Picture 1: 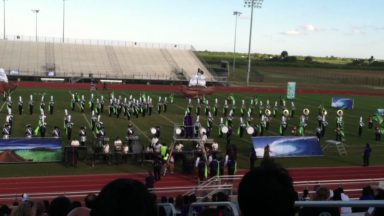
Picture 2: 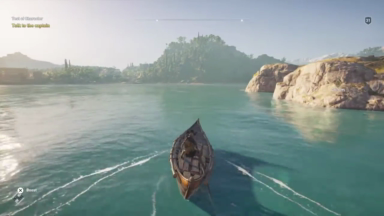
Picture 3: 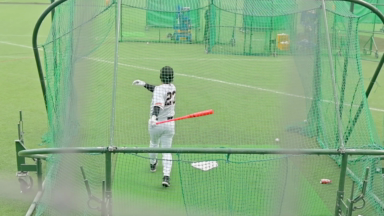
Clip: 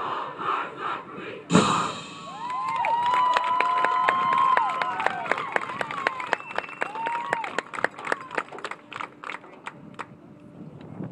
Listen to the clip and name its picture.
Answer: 1